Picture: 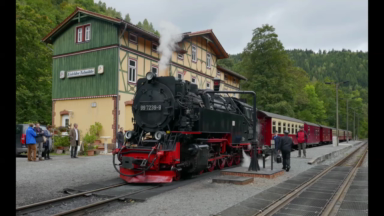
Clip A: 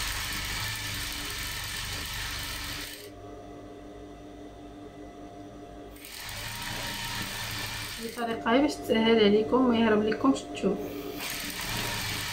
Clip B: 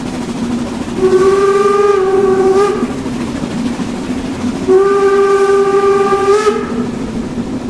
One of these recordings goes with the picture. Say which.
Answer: B